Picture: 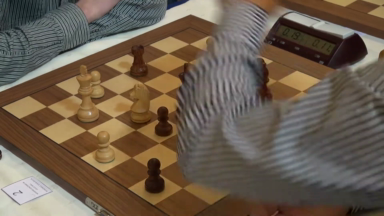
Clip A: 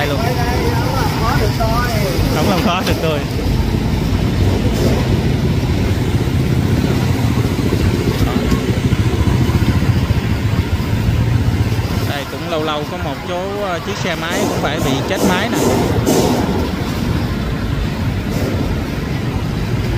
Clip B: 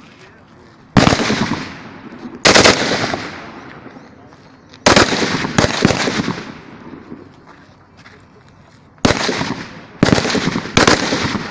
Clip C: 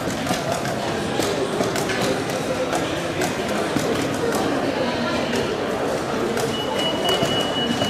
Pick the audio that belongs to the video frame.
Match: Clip C